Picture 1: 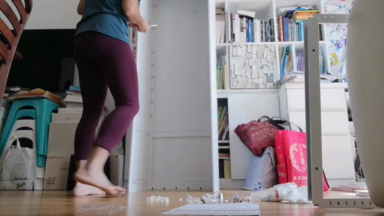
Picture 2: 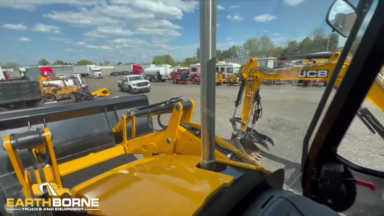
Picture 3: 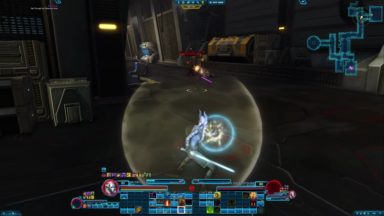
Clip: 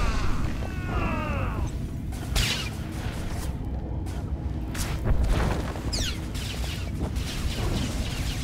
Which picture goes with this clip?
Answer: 3